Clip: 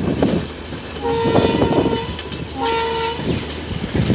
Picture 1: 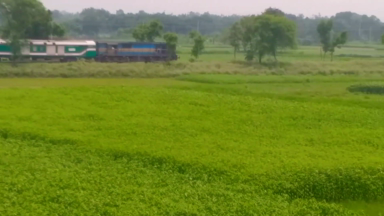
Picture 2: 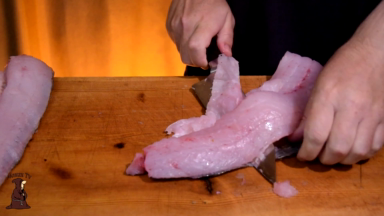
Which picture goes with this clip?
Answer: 1